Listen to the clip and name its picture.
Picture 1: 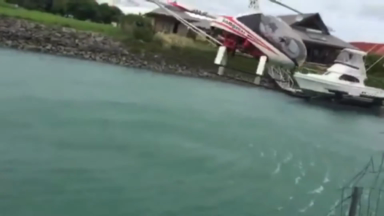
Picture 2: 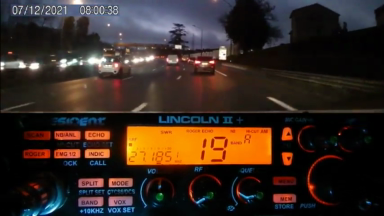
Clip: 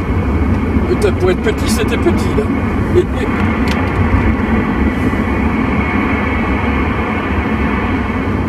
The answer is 2